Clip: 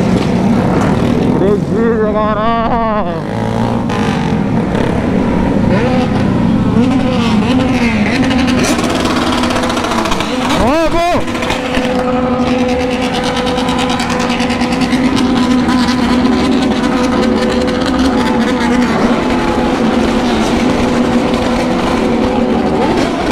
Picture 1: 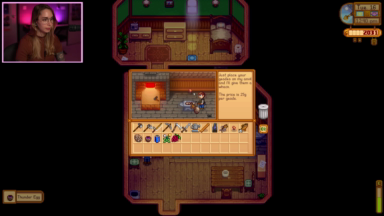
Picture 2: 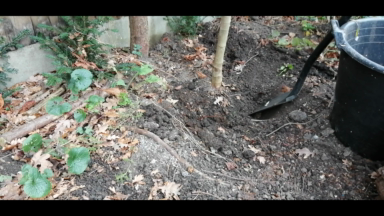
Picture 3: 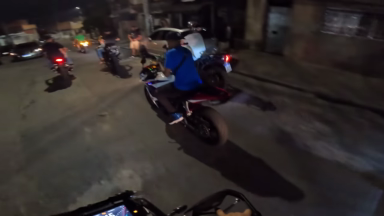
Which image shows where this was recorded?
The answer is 3